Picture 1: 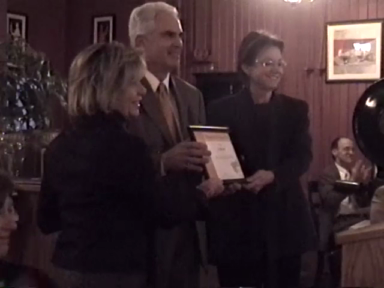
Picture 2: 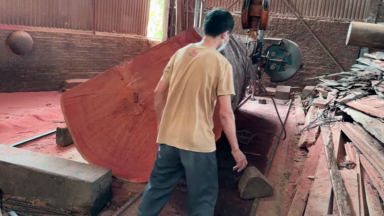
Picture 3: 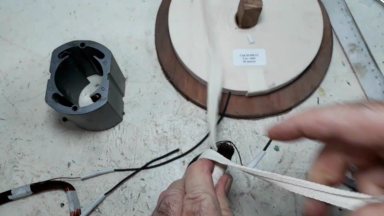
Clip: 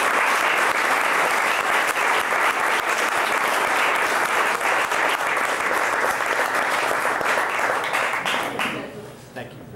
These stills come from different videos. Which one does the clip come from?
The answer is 1